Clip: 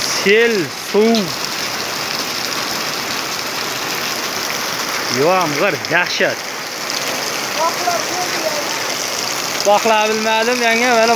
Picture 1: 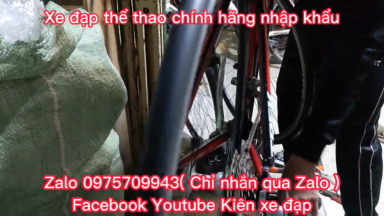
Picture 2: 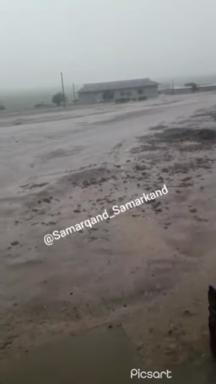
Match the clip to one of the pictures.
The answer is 2